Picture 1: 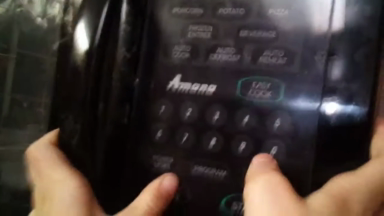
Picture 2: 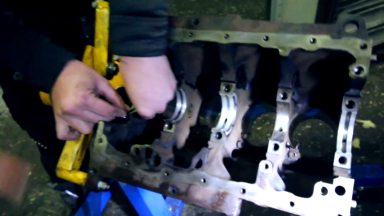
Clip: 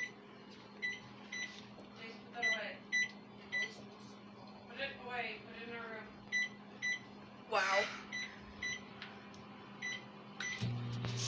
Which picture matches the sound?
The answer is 1